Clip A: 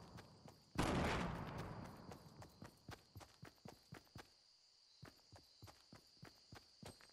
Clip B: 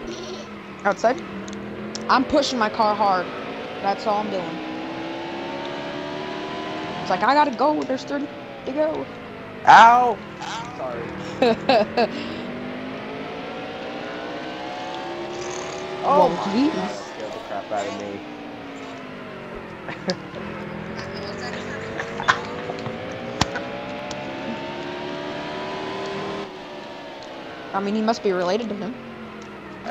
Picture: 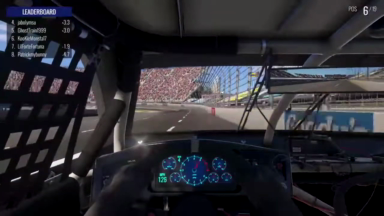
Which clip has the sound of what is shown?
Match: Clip B